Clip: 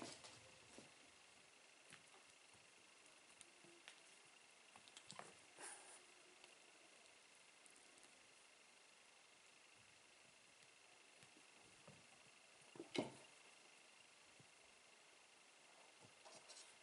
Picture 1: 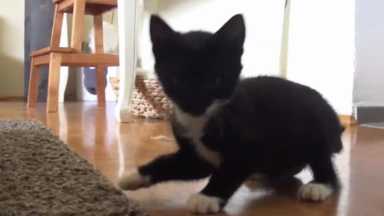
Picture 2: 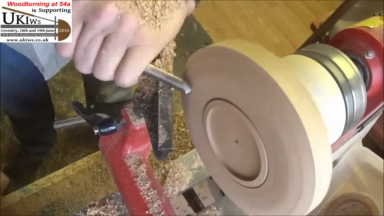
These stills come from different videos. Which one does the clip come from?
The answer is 1